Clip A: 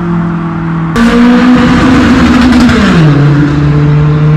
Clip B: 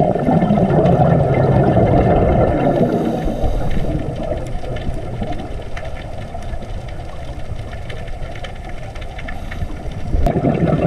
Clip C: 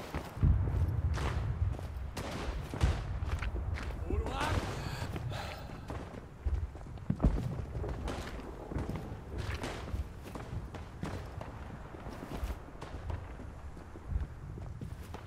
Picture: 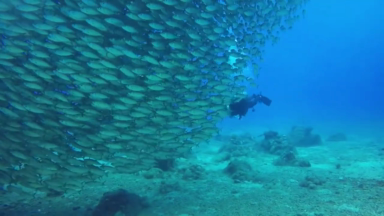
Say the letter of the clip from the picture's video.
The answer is B